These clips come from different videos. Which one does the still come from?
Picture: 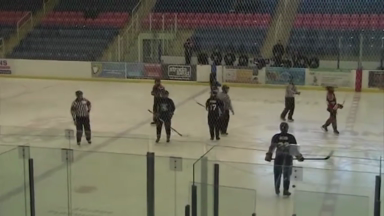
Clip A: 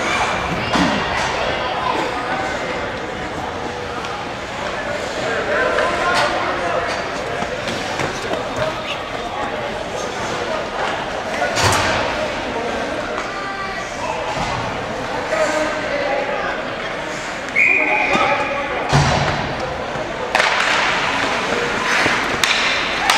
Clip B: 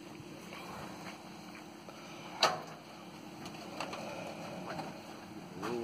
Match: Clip A